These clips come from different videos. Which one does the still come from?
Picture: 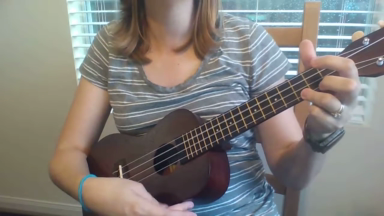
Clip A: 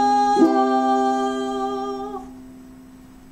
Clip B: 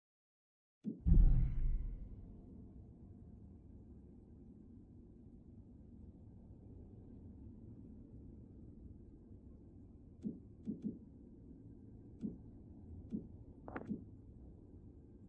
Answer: A